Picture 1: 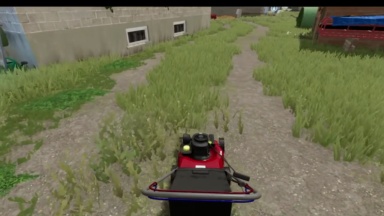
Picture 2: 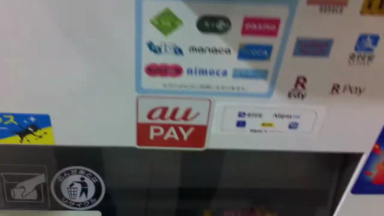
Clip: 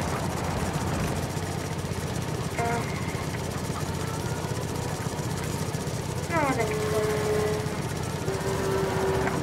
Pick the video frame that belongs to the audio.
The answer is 1